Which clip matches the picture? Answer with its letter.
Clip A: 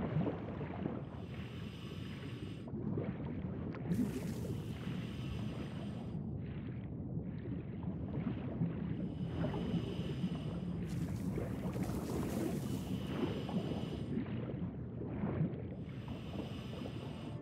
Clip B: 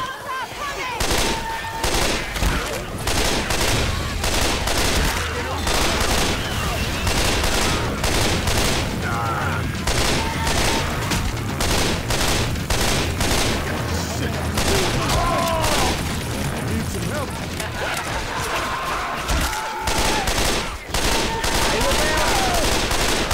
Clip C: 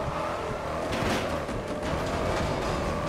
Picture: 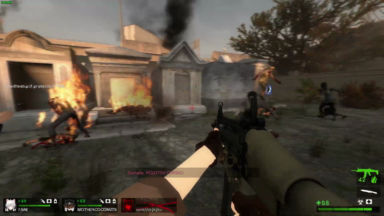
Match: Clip B